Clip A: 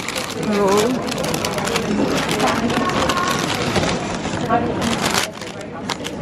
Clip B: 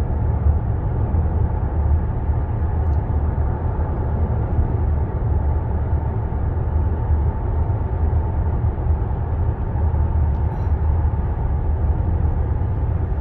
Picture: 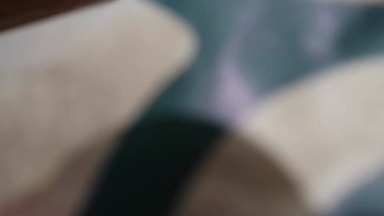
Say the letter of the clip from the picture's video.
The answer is A